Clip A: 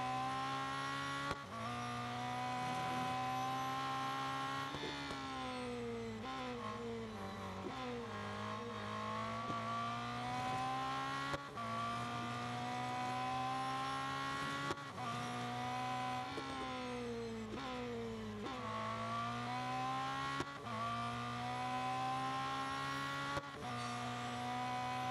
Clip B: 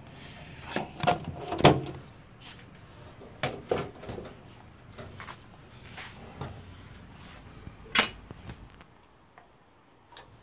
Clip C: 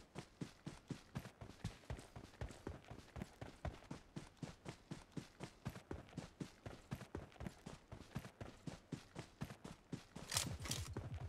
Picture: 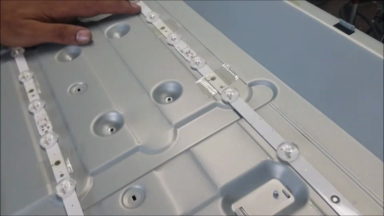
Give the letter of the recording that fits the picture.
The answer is B